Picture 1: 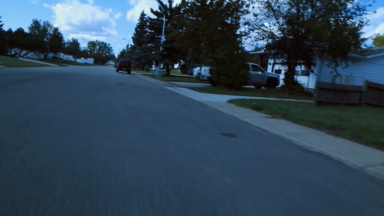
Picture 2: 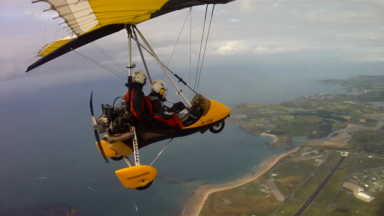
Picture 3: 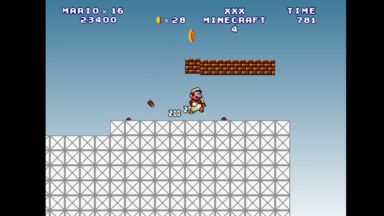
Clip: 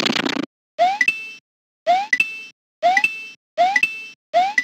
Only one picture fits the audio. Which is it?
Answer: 3